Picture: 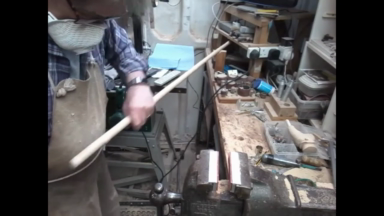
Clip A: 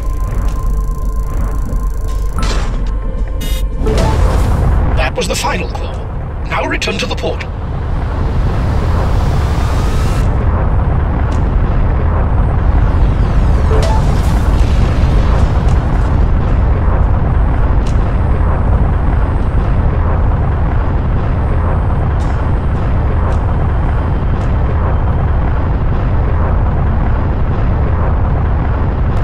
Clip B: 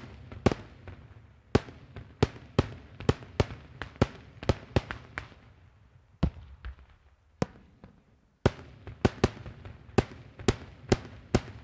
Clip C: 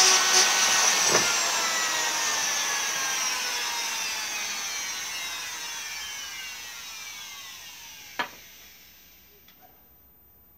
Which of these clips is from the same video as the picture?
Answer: C